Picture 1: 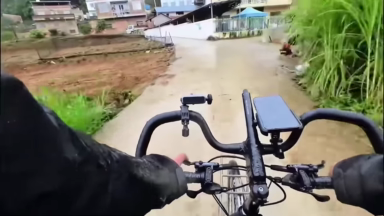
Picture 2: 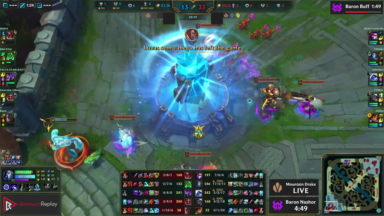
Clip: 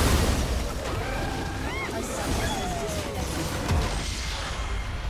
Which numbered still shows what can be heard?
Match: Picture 2